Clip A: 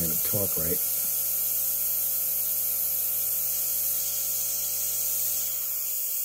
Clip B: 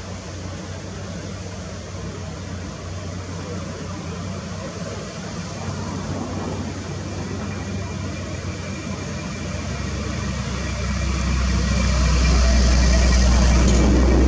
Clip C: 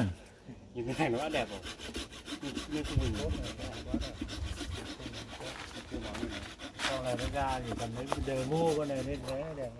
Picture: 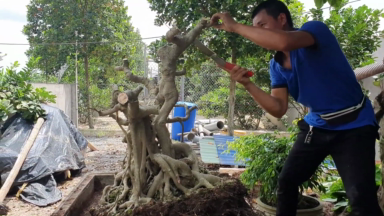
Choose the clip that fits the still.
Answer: C